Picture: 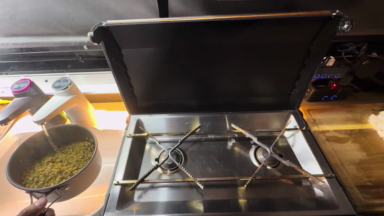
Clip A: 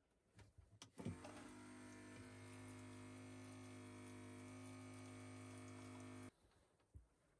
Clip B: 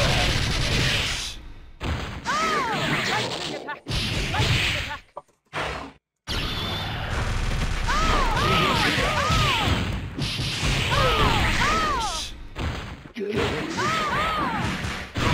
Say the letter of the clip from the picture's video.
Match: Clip A